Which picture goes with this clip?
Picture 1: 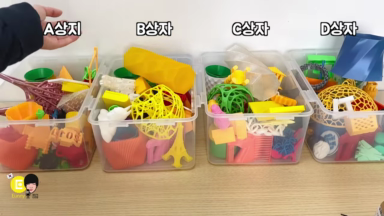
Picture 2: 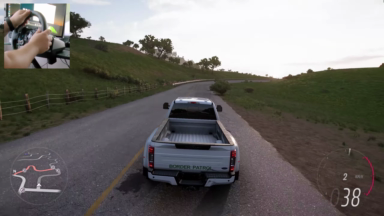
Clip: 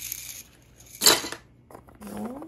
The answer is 1